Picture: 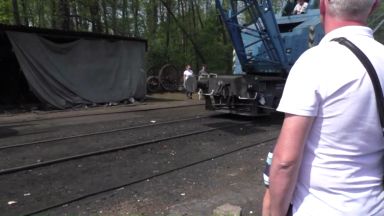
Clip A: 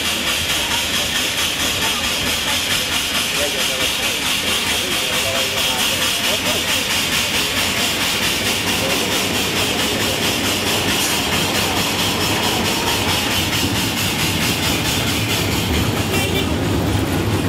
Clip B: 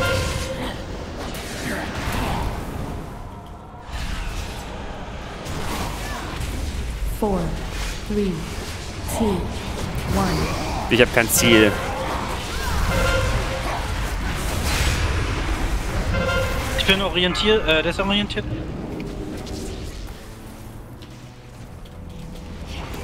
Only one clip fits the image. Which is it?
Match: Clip A